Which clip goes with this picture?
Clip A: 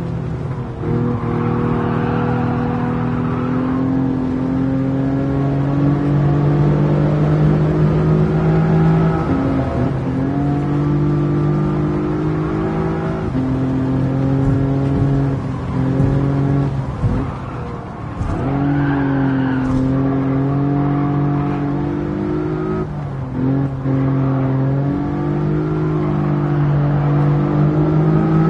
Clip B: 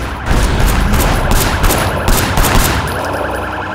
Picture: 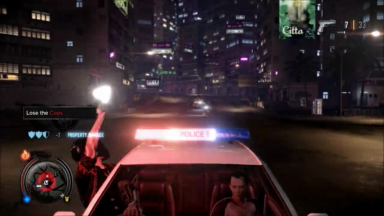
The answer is B